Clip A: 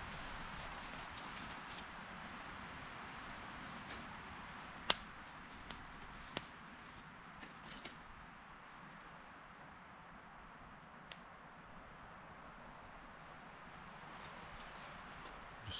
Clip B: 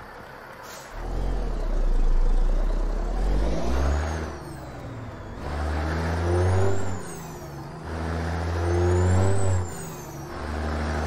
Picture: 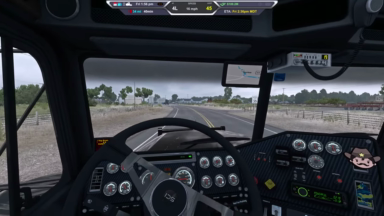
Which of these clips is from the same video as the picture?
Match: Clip B